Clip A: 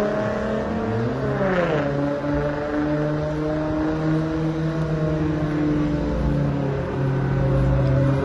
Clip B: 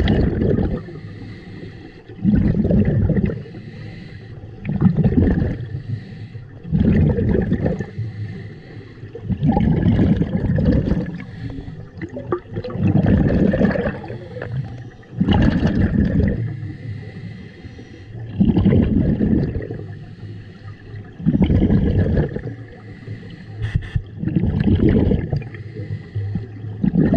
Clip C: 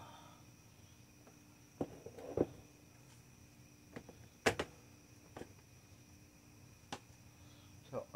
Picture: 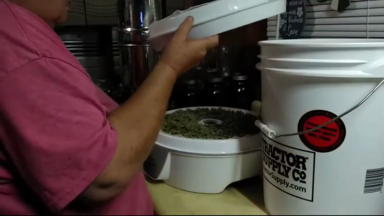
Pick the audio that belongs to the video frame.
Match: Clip C